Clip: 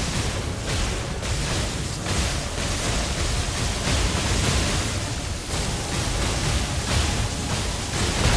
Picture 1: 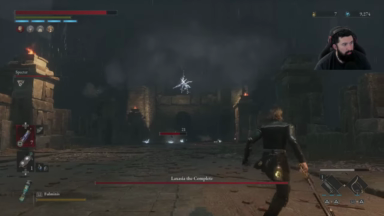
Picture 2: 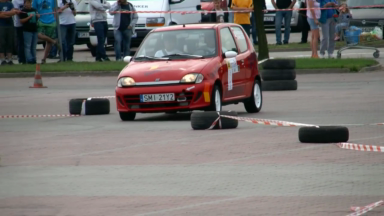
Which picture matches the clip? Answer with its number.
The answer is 1